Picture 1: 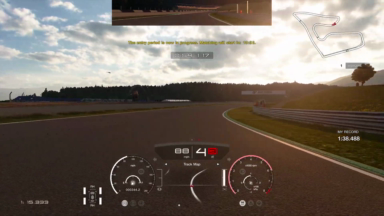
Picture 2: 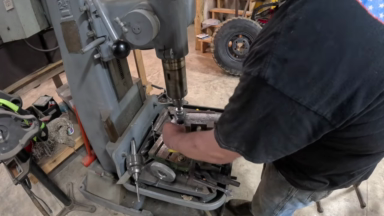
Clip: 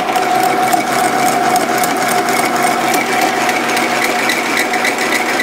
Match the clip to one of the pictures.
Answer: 2